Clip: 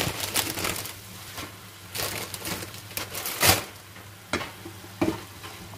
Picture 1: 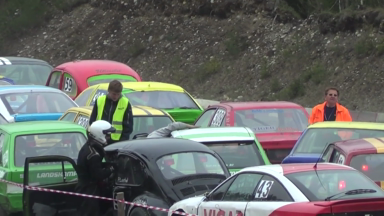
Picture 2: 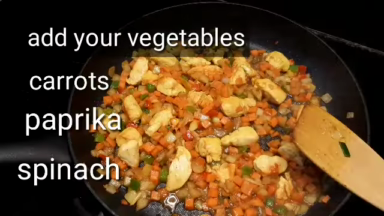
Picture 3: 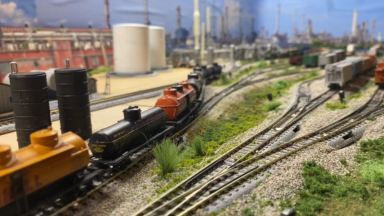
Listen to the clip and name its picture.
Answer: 2